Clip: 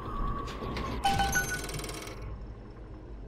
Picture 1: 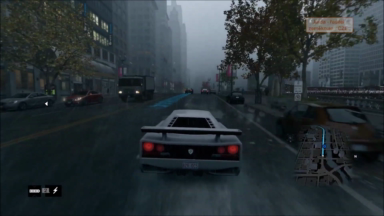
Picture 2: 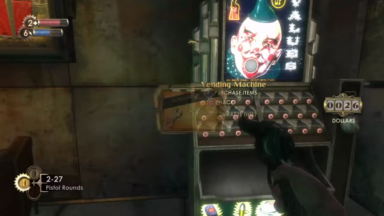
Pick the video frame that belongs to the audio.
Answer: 2